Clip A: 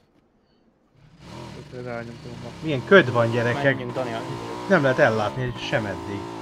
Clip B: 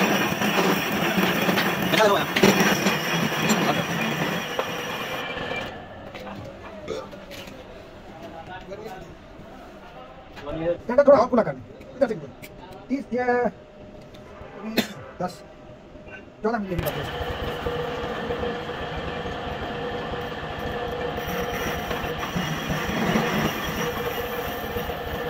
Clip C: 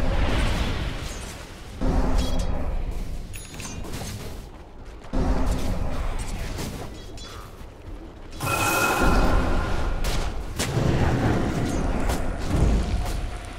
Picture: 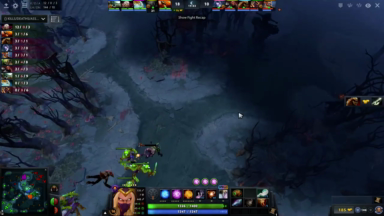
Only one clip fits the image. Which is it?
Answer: C